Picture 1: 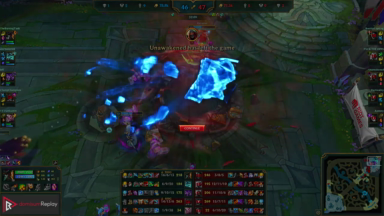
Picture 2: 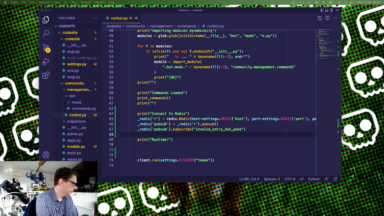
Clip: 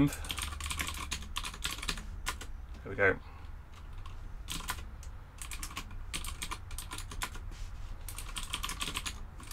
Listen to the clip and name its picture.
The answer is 2